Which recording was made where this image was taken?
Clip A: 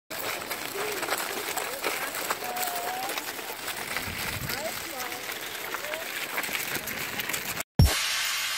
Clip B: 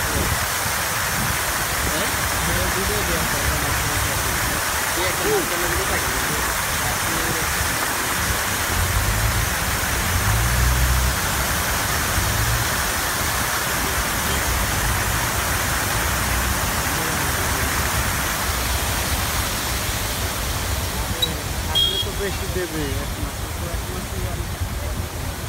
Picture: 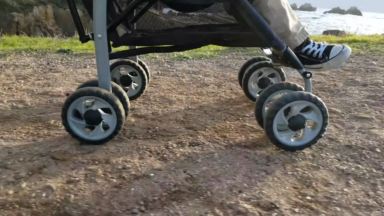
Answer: A